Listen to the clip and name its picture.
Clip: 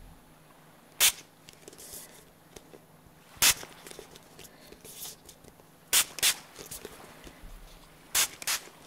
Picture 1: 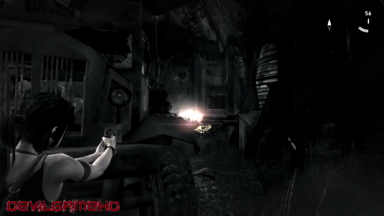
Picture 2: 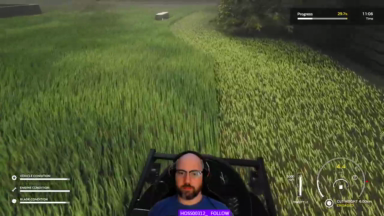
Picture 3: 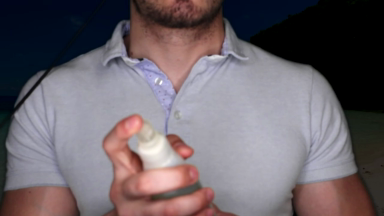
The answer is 3